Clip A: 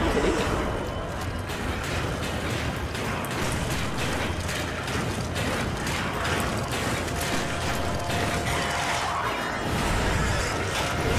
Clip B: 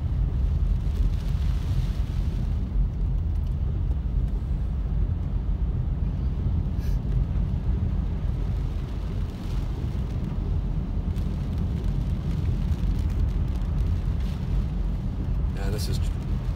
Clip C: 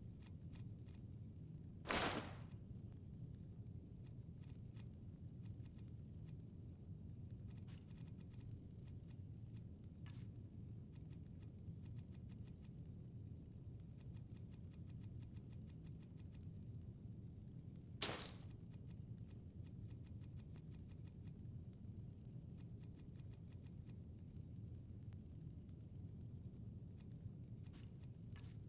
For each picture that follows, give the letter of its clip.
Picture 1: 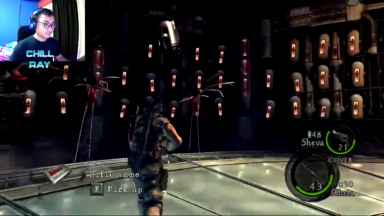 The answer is A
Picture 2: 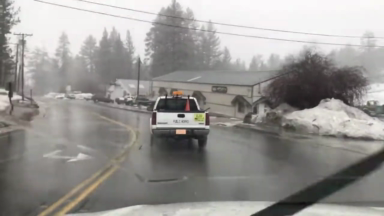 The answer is B